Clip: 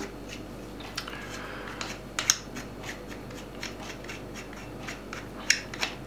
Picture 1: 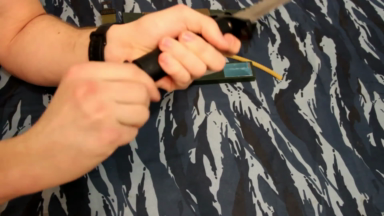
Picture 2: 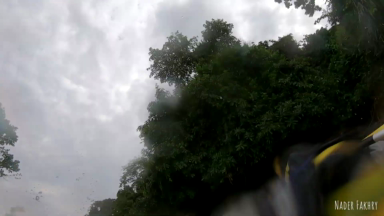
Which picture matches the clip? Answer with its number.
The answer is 1